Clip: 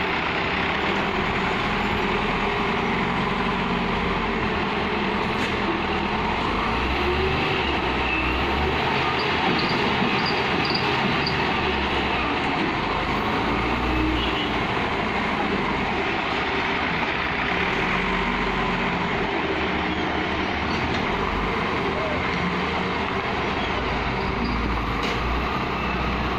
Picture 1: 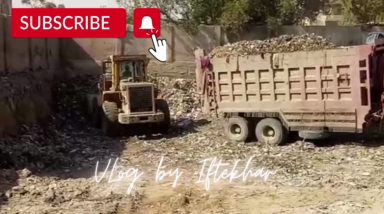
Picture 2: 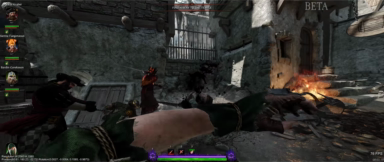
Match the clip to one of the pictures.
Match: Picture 1